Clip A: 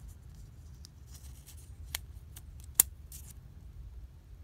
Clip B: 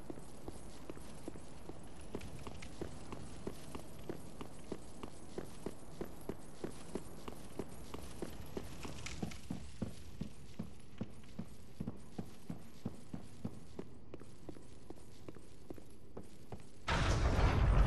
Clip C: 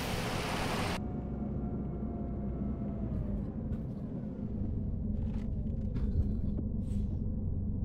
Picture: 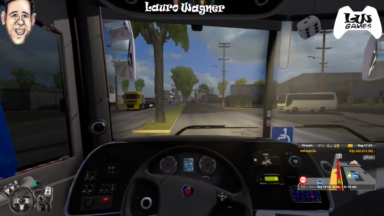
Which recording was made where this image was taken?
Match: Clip C